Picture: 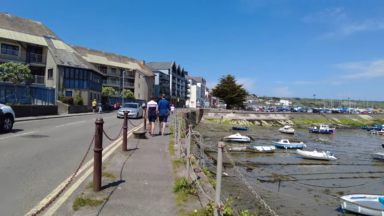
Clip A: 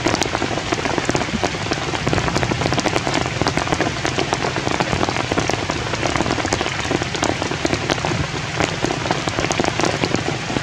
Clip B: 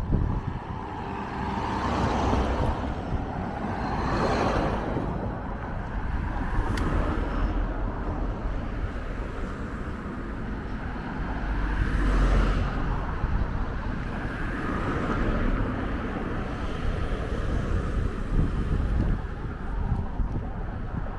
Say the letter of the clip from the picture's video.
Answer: B